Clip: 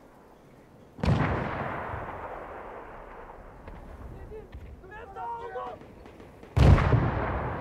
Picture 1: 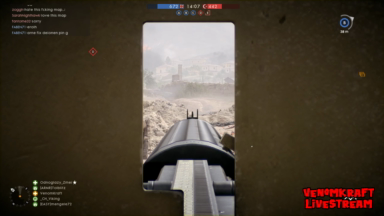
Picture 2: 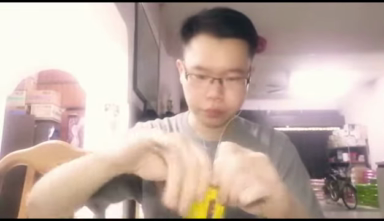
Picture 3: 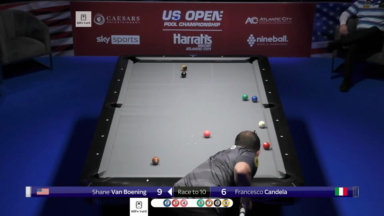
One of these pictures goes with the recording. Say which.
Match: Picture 1